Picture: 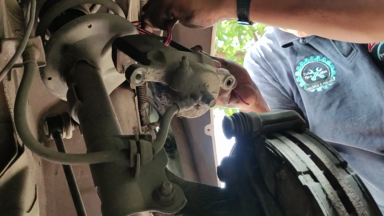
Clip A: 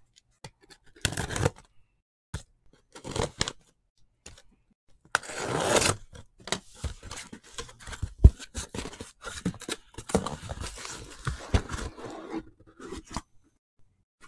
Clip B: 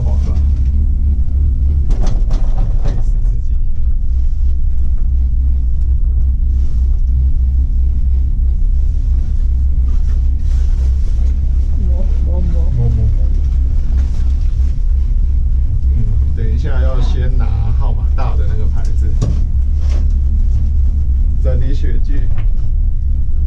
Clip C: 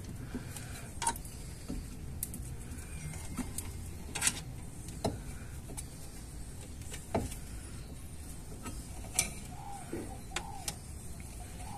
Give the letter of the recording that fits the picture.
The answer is C